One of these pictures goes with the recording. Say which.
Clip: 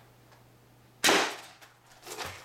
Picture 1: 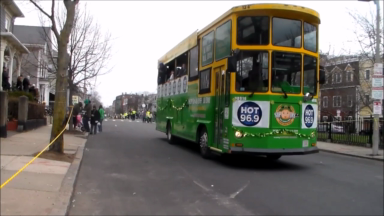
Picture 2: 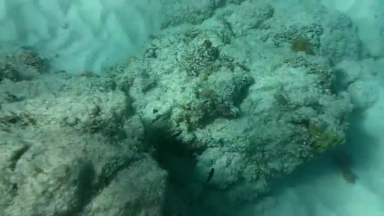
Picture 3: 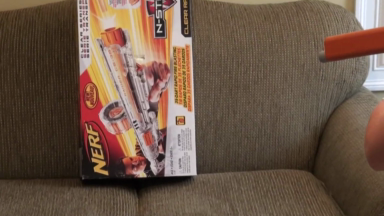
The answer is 3